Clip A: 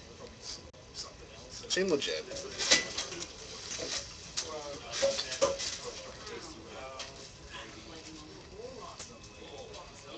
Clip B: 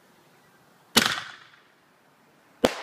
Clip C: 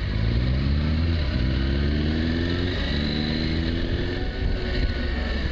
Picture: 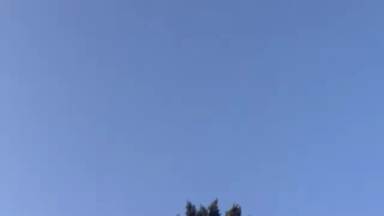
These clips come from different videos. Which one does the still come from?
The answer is B